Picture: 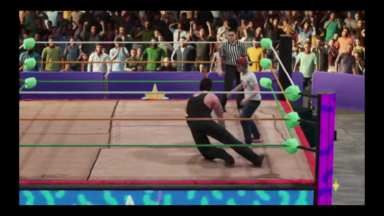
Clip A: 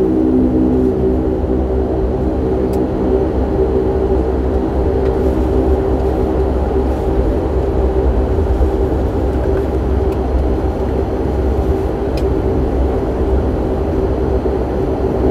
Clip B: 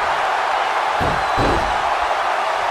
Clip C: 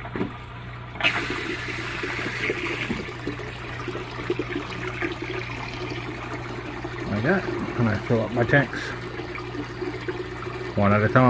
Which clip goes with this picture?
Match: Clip B